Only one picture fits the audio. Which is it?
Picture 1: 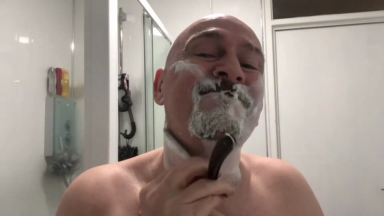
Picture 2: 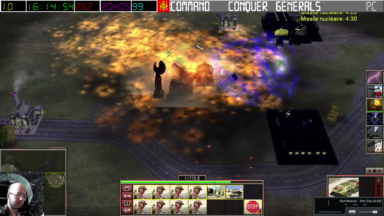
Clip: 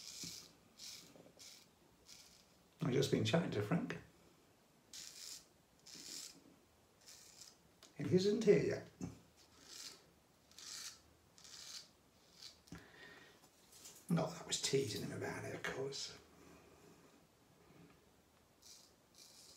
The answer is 1